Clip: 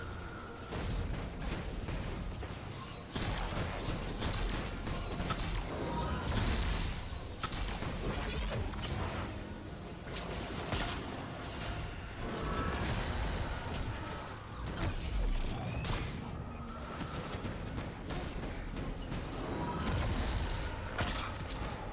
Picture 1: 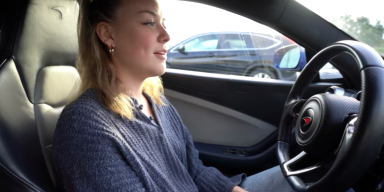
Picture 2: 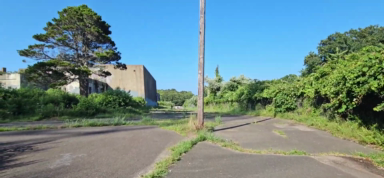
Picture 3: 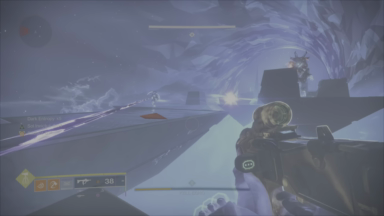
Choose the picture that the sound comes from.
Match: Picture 3